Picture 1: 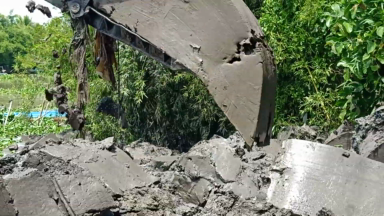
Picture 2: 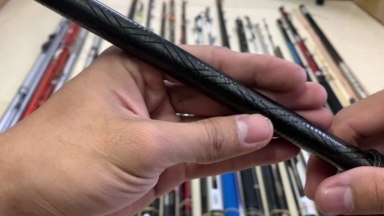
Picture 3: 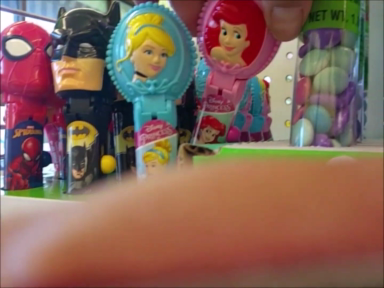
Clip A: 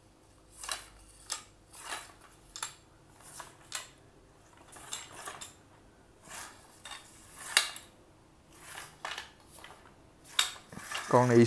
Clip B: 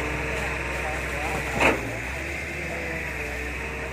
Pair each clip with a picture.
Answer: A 2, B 1